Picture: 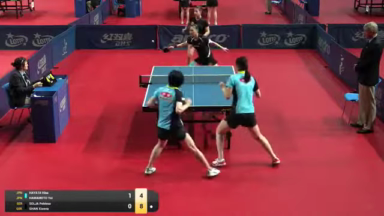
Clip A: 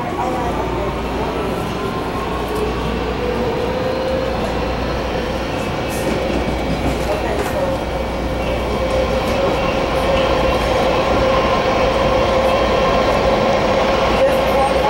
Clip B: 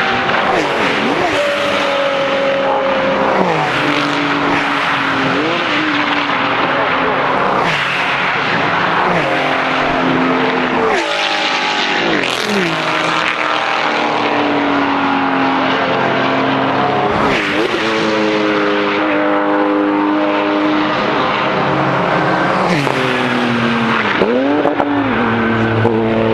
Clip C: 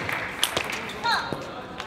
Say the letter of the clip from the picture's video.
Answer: C